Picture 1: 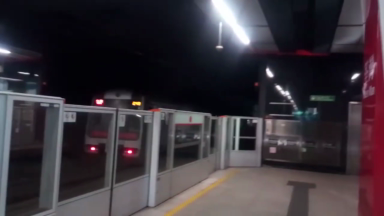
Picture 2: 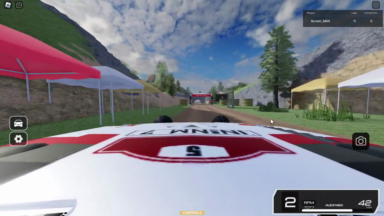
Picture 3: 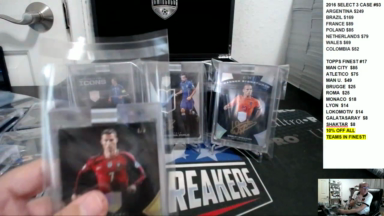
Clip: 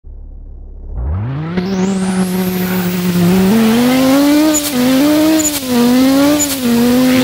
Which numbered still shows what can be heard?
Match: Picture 2